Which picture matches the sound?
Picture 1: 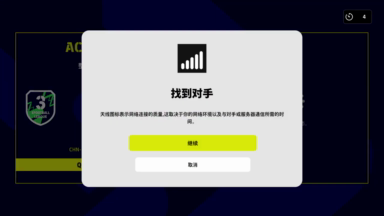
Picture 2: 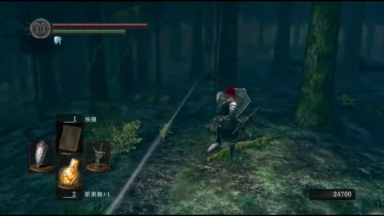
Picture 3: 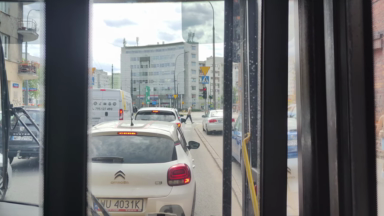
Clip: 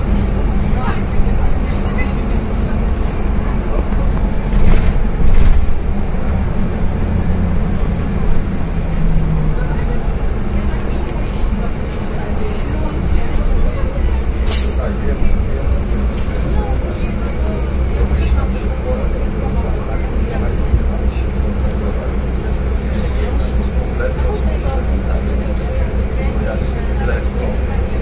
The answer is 3